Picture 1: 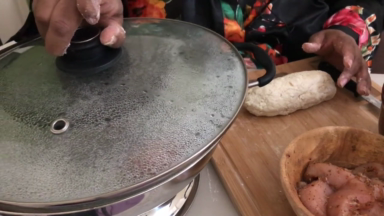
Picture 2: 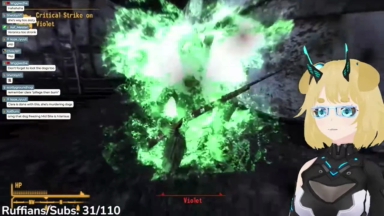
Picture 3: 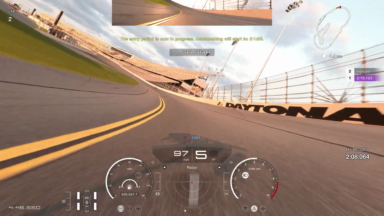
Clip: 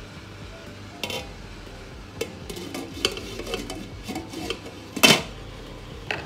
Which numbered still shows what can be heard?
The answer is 1